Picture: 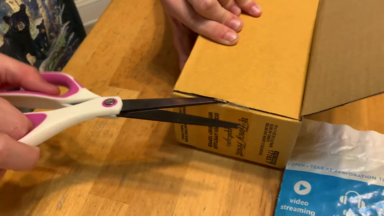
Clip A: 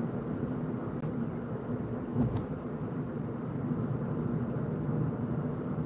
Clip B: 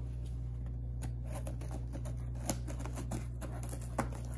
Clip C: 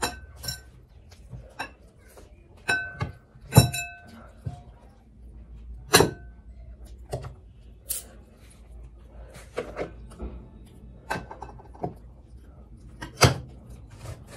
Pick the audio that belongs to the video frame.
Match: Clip B